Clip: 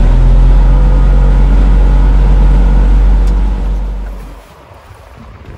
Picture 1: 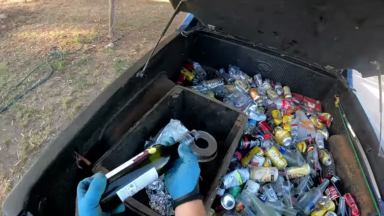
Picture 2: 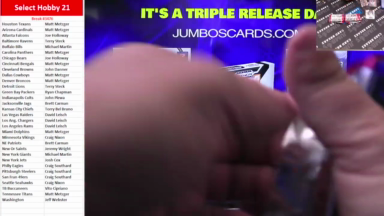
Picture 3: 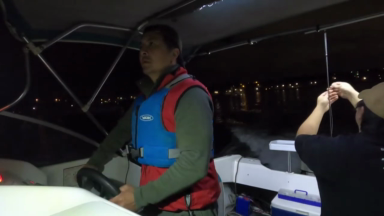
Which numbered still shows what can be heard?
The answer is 3